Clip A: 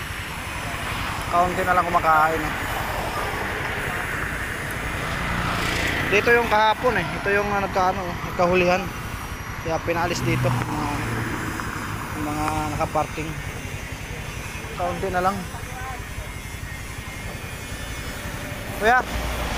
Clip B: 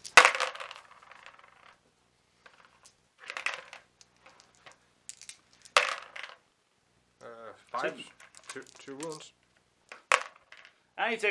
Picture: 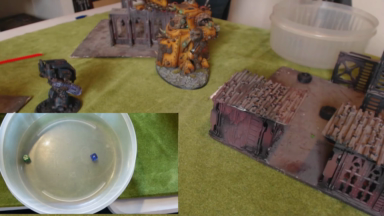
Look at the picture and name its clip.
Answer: B